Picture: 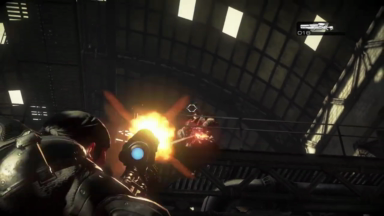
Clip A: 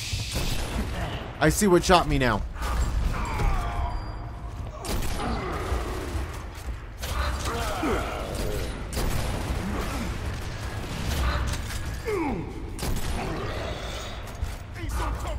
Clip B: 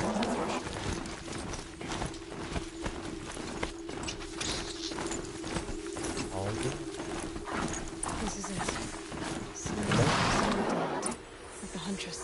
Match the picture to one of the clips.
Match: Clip A